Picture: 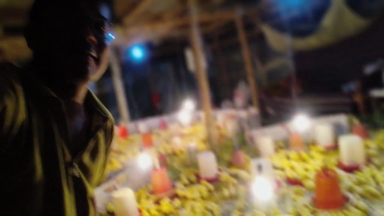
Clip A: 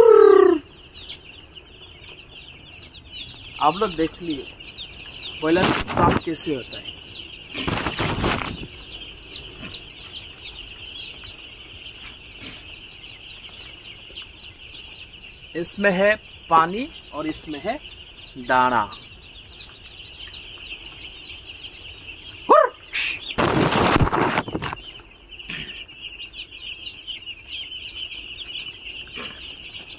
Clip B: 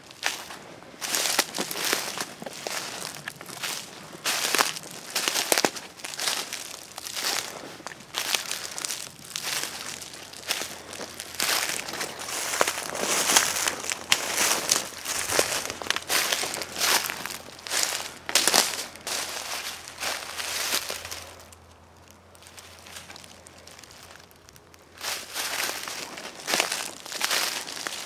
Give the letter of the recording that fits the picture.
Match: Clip A